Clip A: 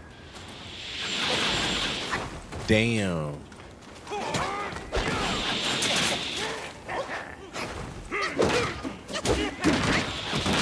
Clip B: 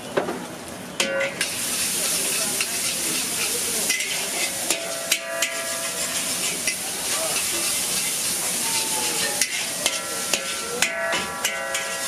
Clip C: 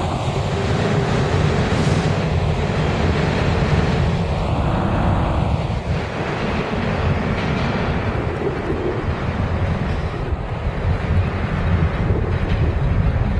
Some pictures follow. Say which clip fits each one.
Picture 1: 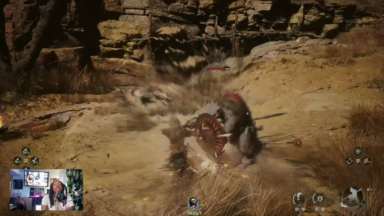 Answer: A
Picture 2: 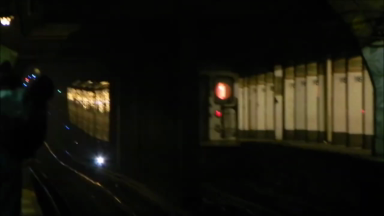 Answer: C